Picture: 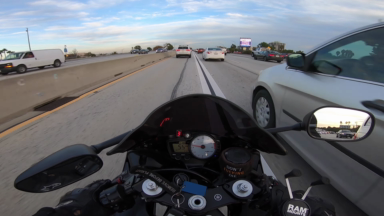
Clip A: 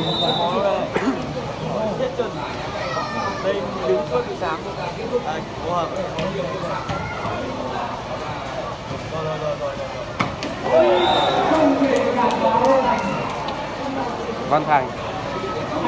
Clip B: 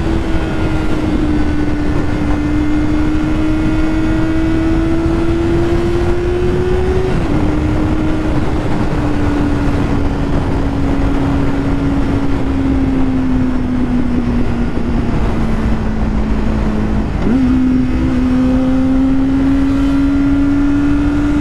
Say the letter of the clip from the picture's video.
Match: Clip B